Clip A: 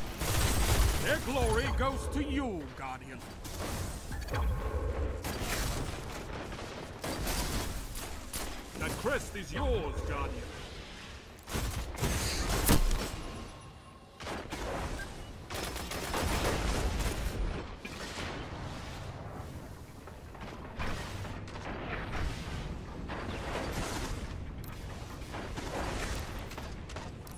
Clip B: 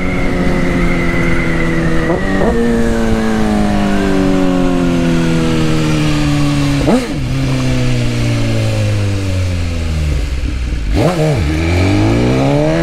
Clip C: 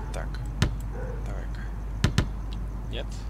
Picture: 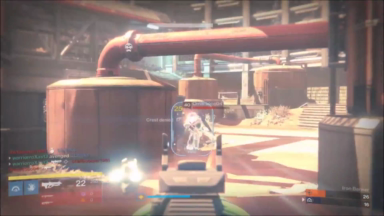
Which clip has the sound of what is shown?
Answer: A